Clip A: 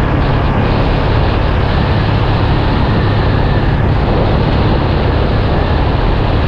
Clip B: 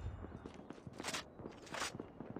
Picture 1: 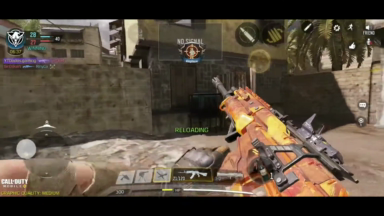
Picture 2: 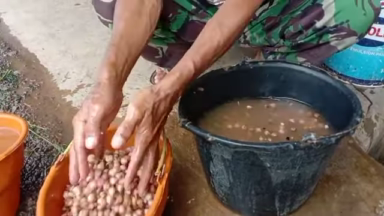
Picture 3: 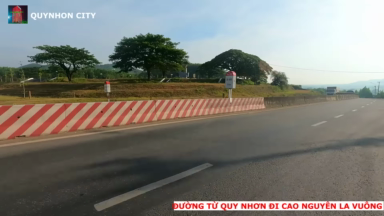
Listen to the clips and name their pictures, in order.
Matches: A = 3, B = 1